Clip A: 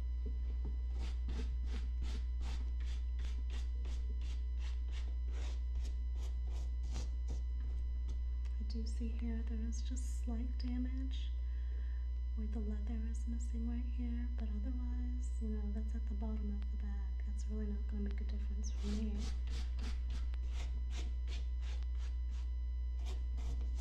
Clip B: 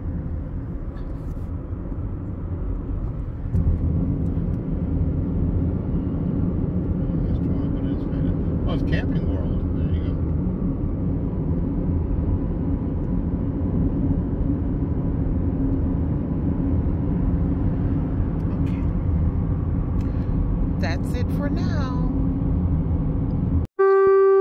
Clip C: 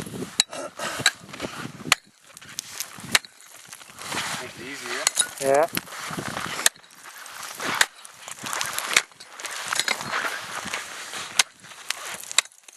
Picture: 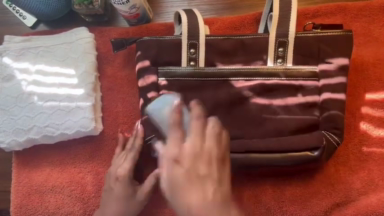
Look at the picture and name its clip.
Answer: A